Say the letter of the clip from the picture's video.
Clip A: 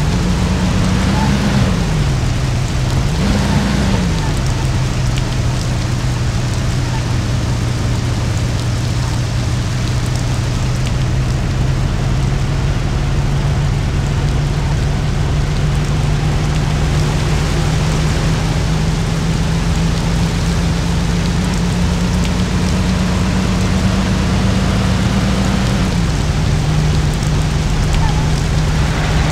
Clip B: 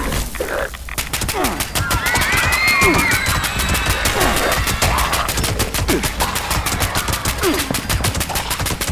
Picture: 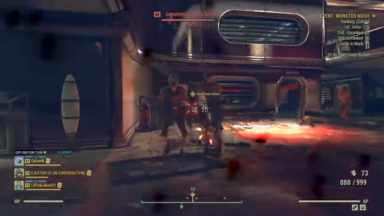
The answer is B